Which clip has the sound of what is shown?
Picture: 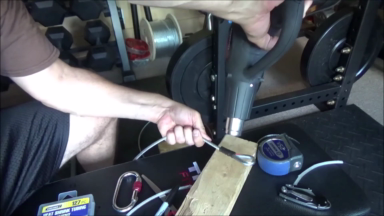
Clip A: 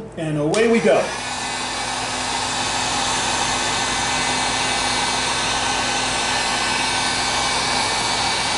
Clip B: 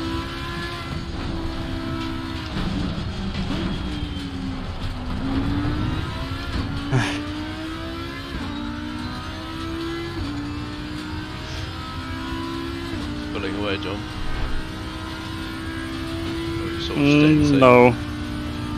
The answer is A